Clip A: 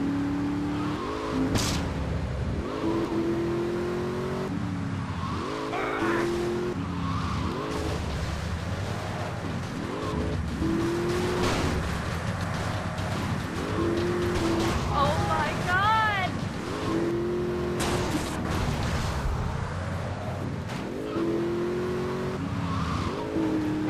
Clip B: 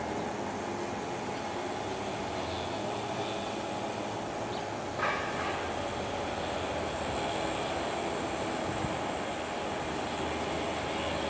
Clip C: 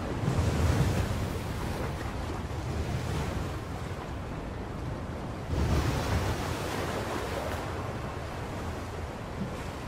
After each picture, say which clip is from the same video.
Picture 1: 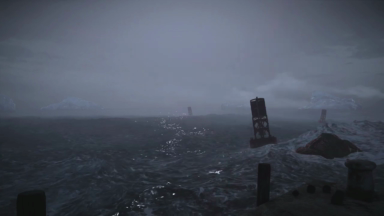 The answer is C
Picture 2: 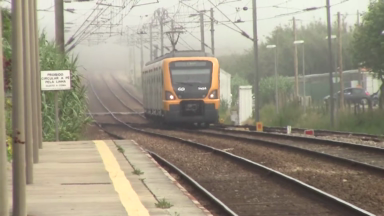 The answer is B